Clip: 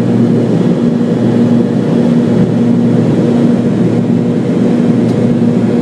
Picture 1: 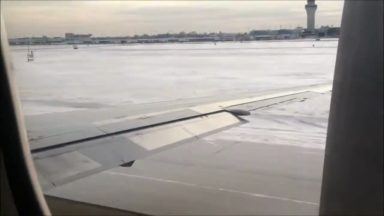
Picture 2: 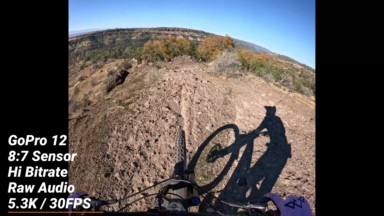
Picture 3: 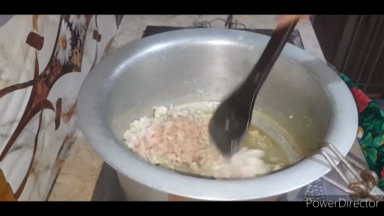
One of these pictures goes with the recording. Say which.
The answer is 1